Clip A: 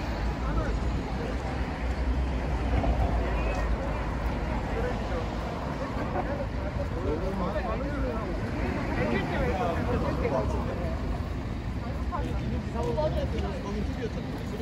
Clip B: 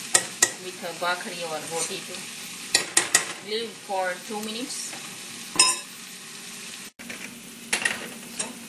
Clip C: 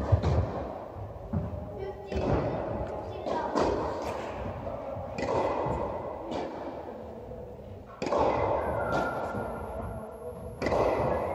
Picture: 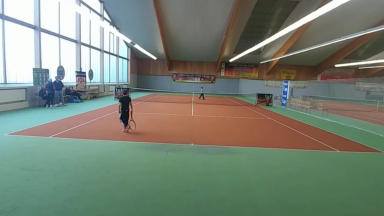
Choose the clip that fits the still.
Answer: C